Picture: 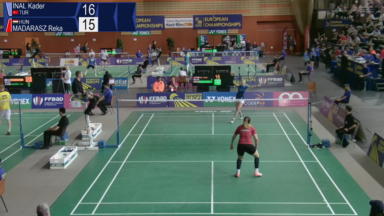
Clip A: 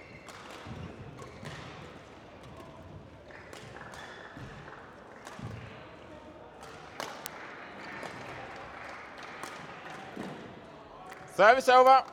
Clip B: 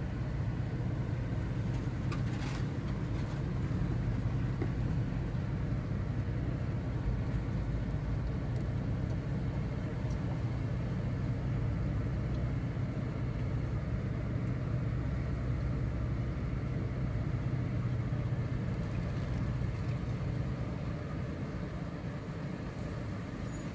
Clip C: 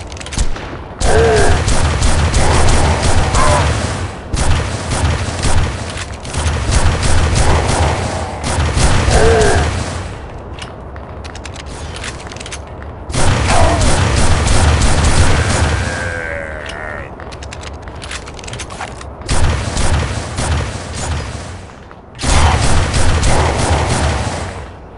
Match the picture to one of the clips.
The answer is A